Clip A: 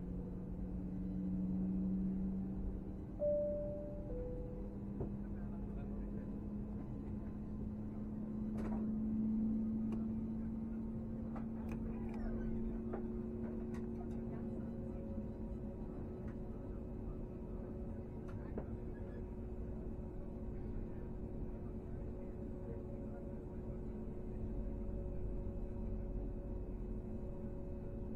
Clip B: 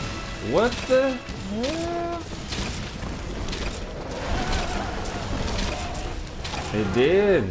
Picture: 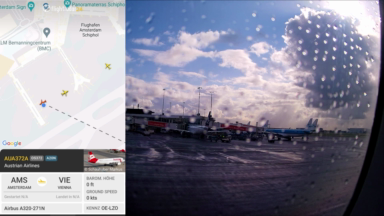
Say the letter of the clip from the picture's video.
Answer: A